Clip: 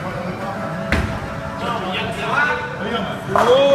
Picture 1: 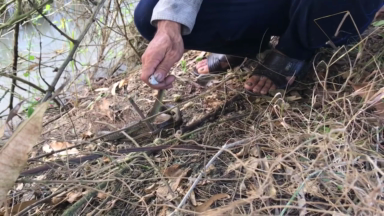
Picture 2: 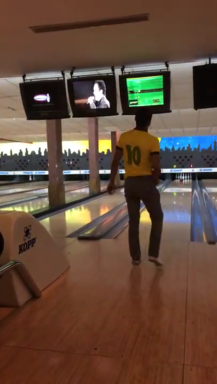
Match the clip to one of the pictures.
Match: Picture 2